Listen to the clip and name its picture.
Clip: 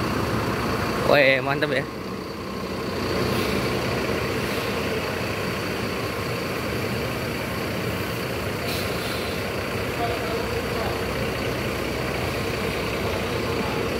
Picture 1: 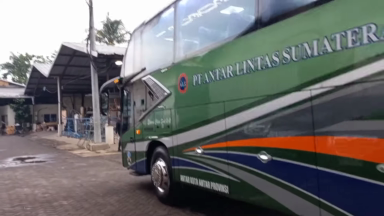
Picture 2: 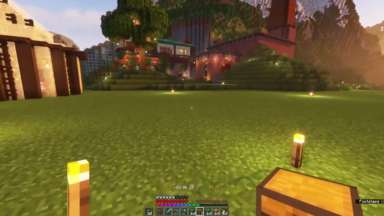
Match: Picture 1